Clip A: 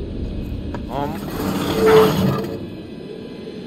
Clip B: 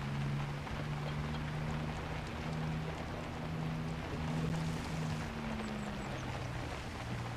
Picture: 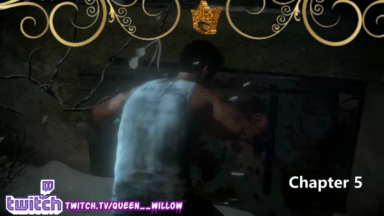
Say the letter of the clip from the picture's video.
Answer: A